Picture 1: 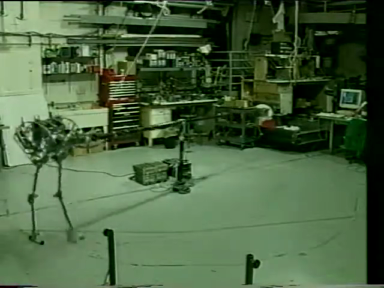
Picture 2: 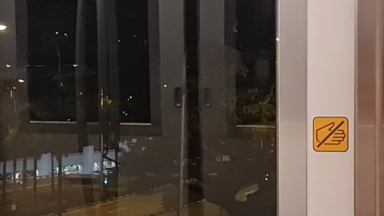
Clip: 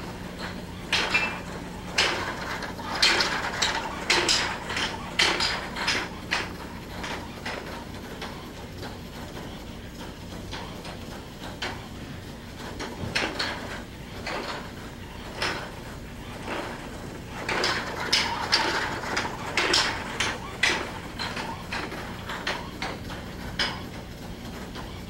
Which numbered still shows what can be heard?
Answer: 1